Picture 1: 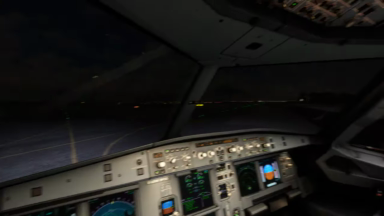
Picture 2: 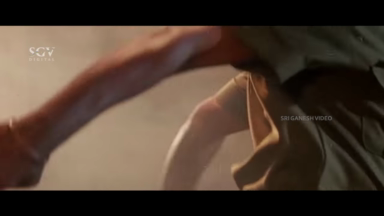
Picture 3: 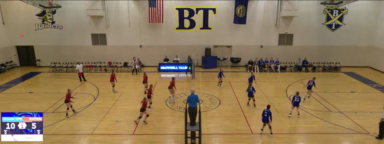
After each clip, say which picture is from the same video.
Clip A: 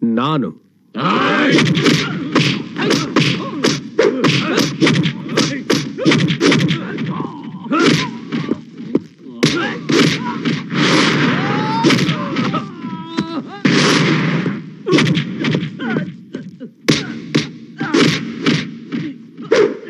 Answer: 2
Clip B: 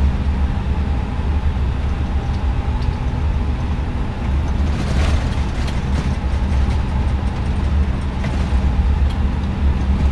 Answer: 1